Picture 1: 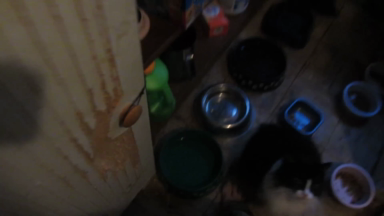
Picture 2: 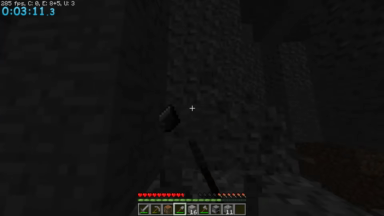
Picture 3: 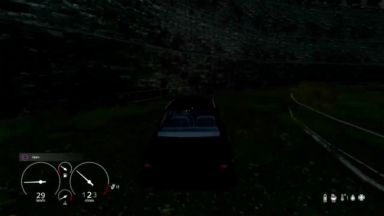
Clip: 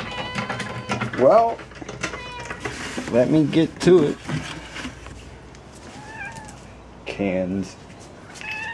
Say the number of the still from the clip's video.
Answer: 1